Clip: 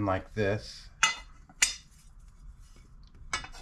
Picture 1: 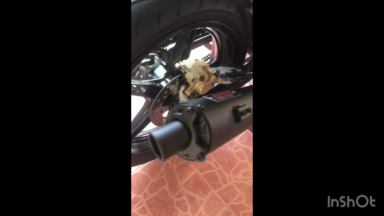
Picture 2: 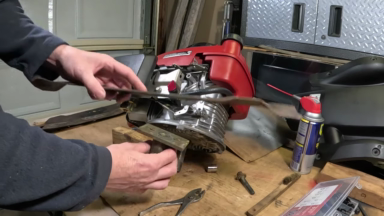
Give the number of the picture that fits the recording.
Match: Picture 2